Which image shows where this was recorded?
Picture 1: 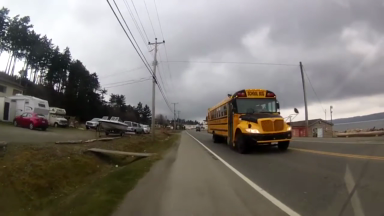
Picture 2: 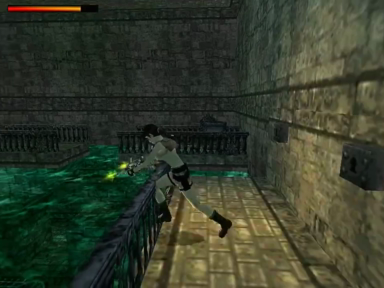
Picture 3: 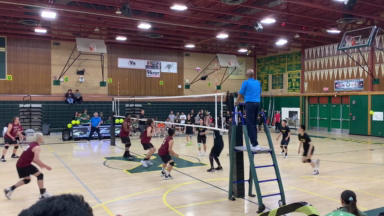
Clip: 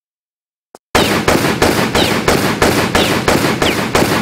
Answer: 2